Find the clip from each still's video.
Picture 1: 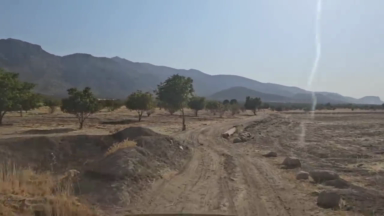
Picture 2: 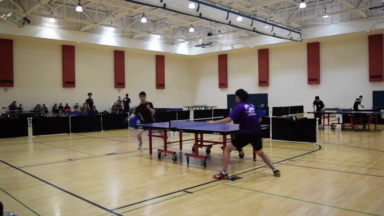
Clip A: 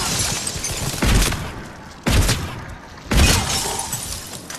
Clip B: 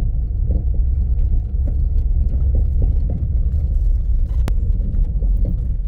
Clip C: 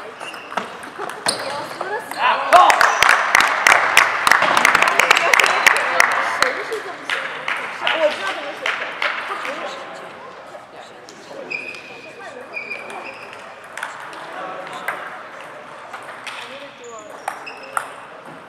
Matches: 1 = B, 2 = C